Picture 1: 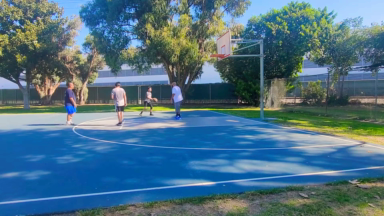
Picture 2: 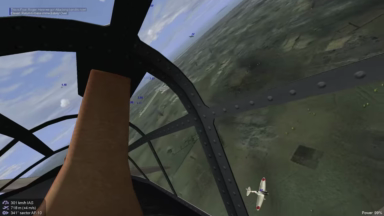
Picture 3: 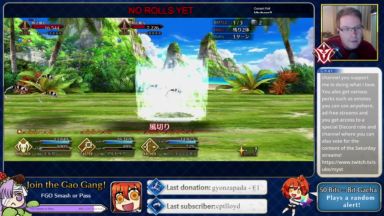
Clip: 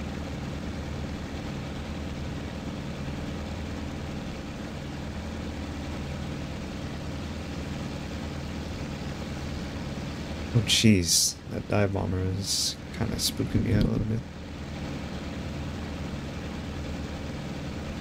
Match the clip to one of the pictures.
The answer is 2